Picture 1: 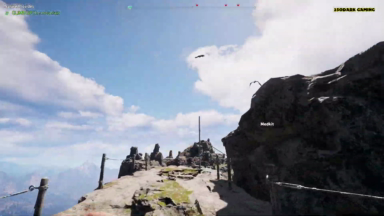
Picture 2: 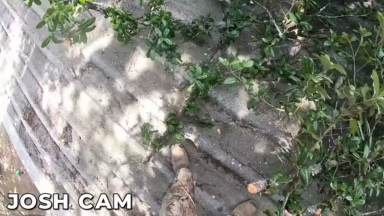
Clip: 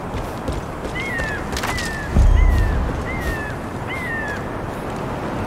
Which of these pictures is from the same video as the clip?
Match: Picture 1